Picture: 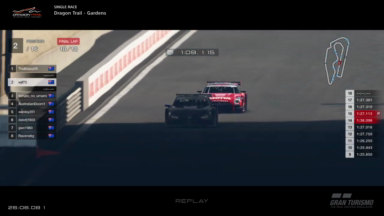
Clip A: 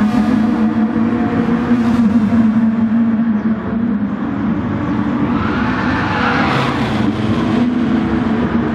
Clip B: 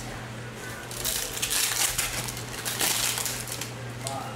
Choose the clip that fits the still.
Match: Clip A